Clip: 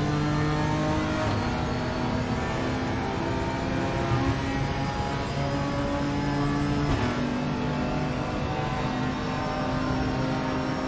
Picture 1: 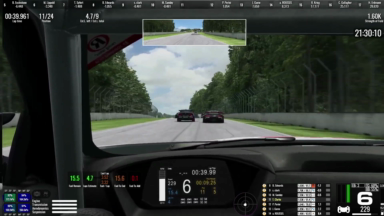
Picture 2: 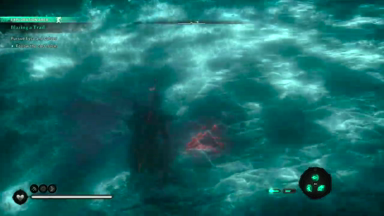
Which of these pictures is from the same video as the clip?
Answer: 1